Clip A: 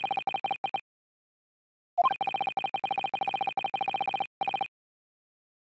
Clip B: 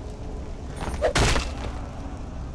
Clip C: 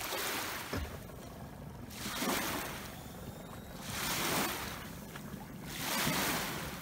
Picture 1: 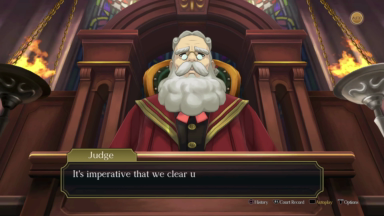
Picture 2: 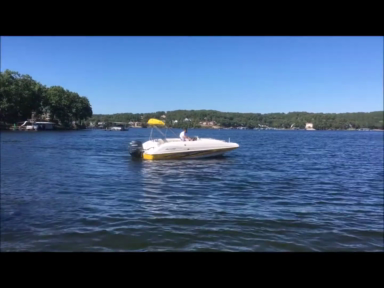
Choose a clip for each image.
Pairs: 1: A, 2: C